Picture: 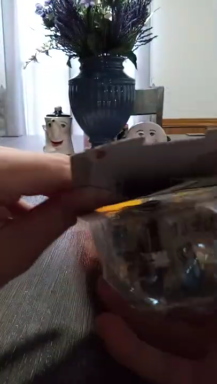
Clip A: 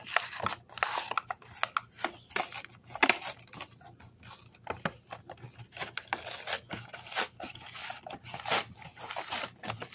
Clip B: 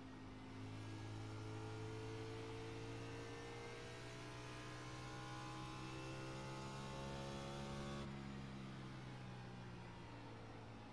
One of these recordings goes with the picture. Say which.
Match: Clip A